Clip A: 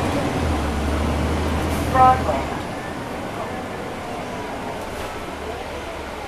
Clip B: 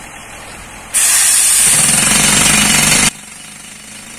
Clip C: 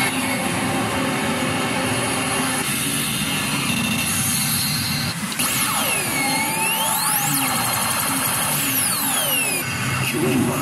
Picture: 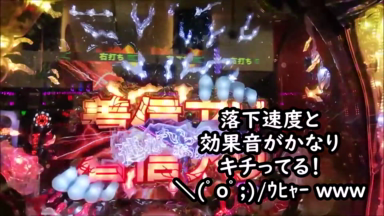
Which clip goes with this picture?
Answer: C